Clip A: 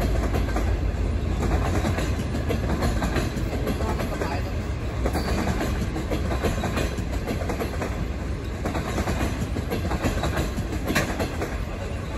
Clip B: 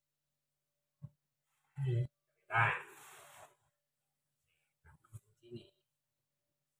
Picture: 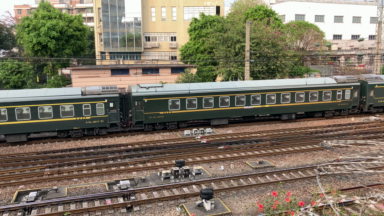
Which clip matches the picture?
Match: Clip A